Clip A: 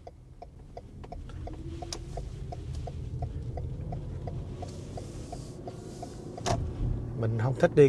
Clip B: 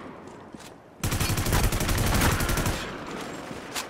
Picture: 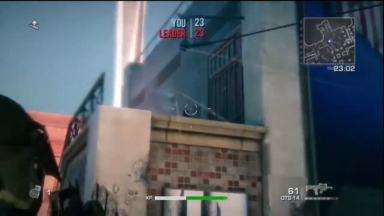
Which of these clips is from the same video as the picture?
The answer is B